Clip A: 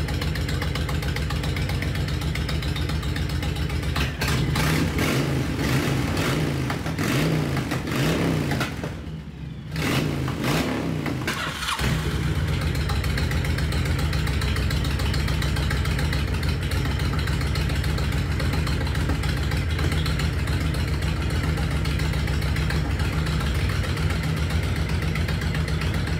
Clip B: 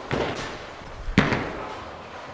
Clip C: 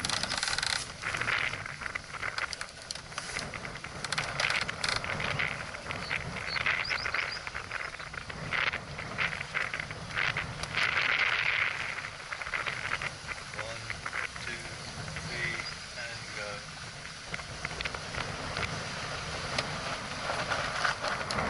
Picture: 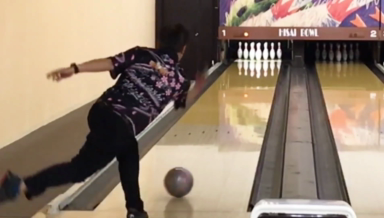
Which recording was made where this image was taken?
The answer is B